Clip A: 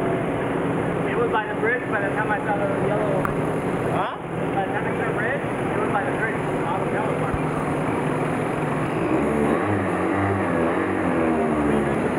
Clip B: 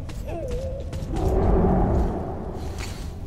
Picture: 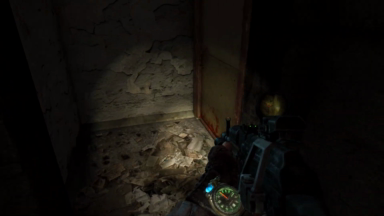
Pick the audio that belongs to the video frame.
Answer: B